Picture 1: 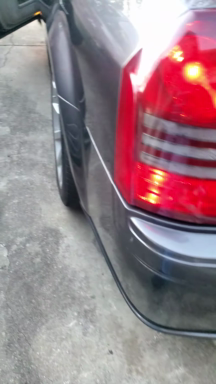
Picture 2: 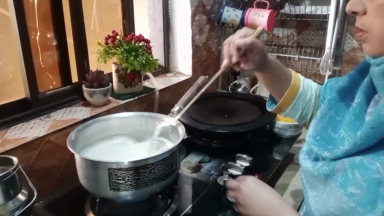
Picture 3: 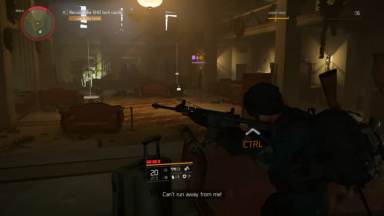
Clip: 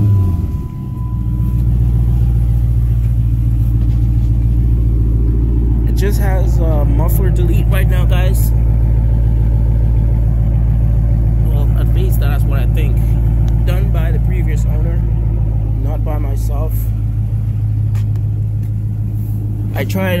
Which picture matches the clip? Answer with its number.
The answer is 1